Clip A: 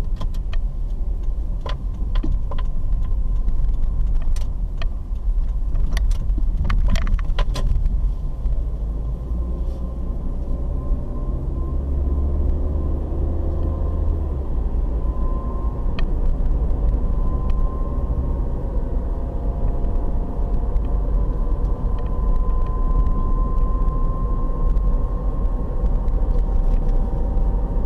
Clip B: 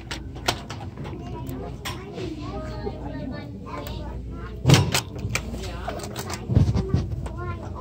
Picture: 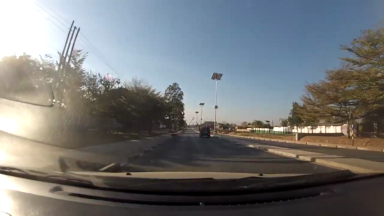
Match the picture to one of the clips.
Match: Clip A